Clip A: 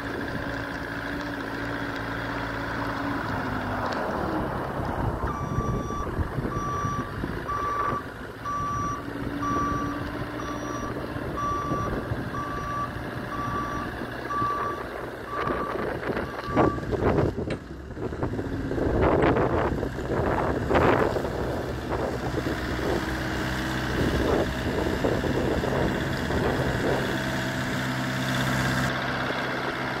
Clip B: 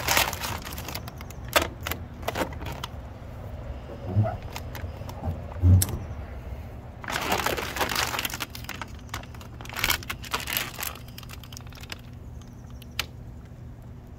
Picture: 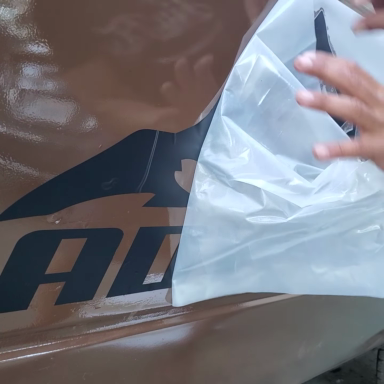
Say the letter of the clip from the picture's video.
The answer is B